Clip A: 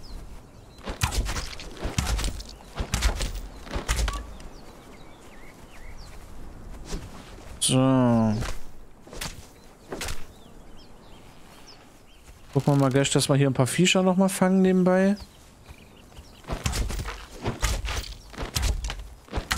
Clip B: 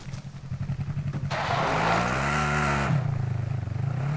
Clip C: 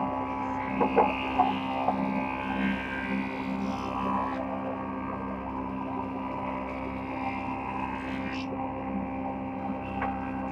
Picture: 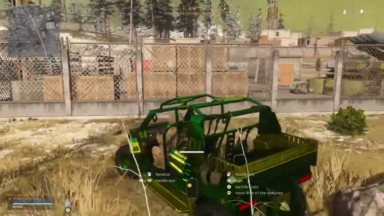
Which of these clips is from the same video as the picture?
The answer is B